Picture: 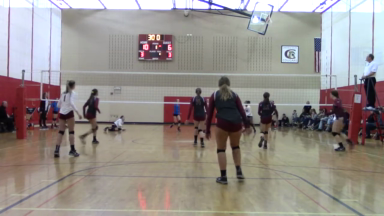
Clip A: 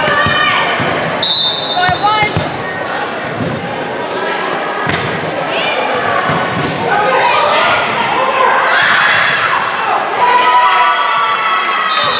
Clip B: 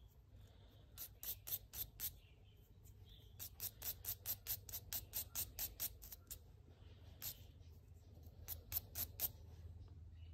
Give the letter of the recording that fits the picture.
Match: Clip A